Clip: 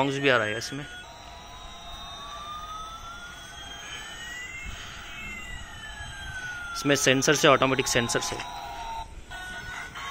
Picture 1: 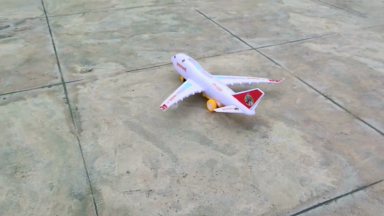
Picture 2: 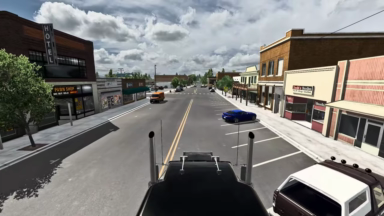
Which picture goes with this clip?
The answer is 1